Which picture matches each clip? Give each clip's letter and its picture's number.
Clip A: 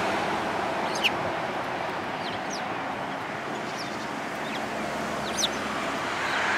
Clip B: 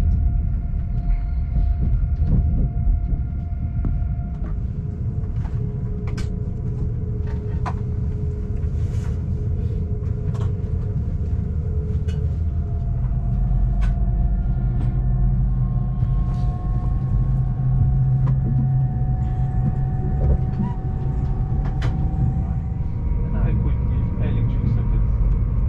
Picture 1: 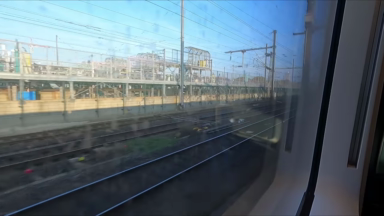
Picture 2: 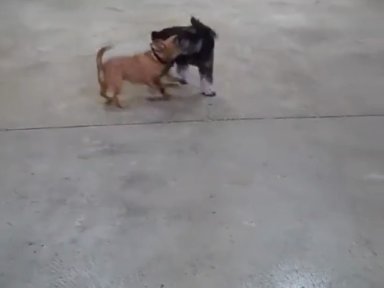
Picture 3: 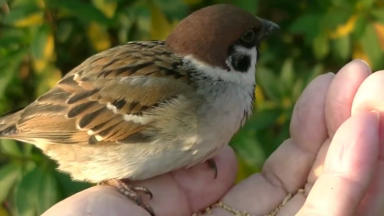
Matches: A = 3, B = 1